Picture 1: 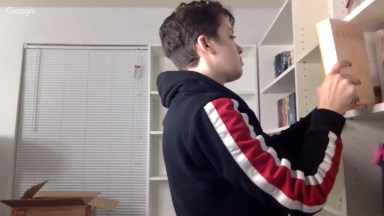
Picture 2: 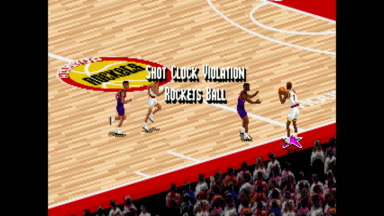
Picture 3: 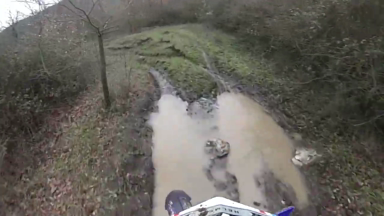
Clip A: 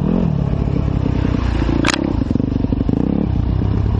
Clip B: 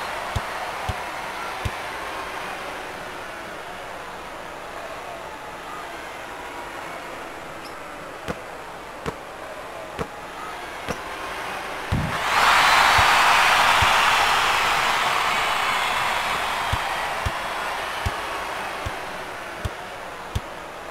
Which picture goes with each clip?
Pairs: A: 3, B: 2